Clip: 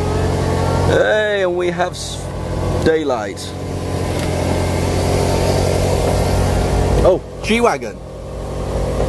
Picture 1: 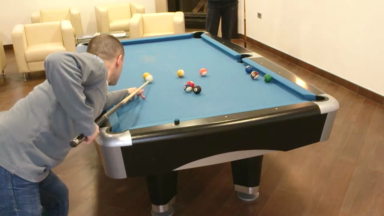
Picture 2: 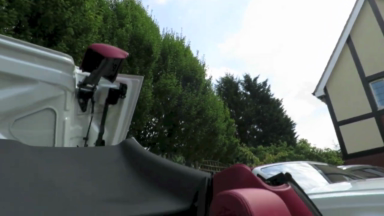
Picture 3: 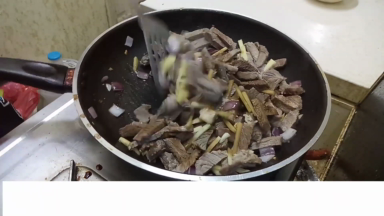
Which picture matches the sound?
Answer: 2